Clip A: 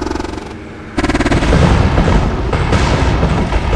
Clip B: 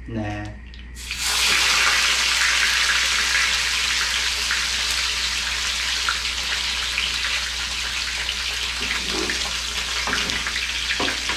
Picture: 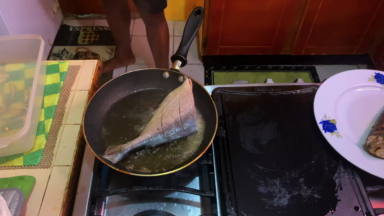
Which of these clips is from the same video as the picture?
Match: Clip B